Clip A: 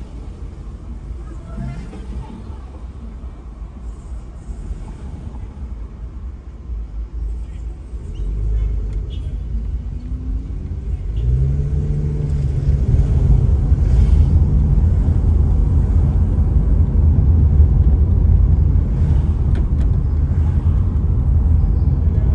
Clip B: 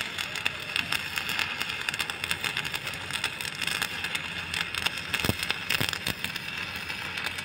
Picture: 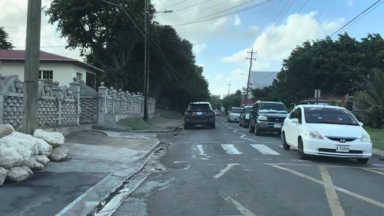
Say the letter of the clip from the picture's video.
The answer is A